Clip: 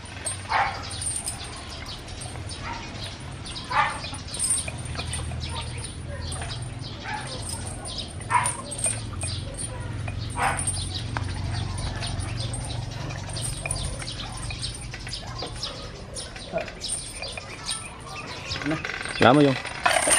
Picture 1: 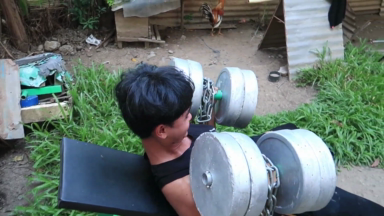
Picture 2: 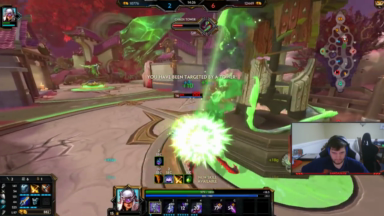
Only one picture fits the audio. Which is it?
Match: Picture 1